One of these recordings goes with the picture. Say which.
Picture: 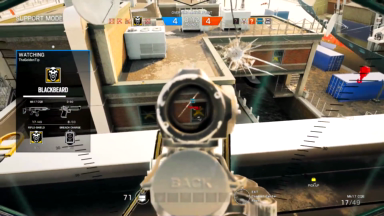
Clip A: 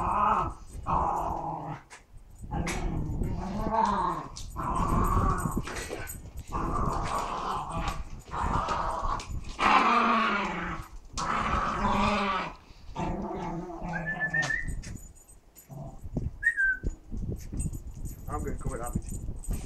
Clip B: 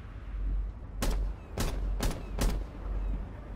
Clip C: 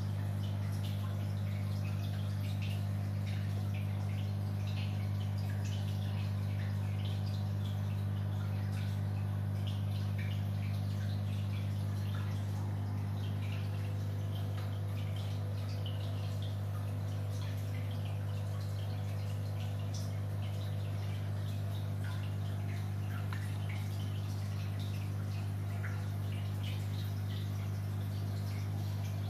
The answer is B